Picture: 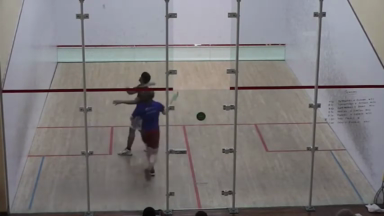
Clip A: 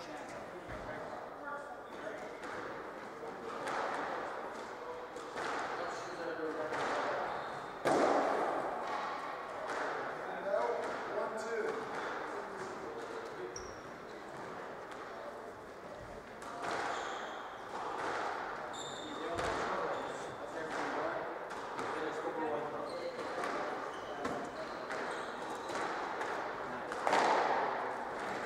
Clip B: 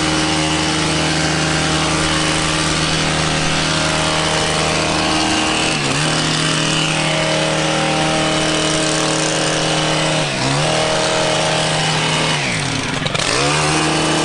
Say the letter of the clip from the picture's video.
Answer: A